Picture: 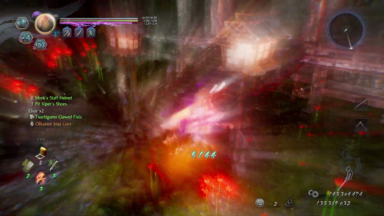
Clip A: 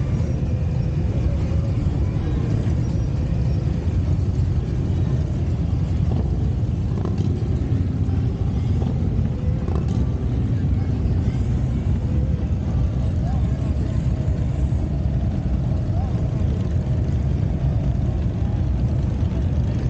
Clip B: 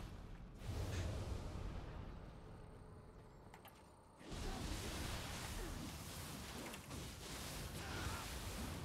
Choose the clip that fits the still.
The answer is B